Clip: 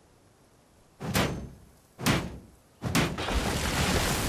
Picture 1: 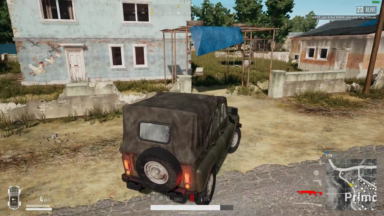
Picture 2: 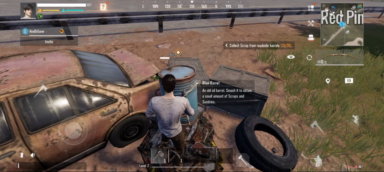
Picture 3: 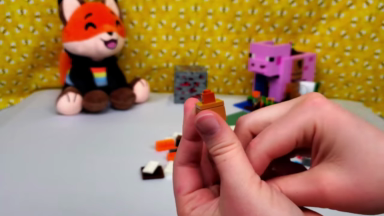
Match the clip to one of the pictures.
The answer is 2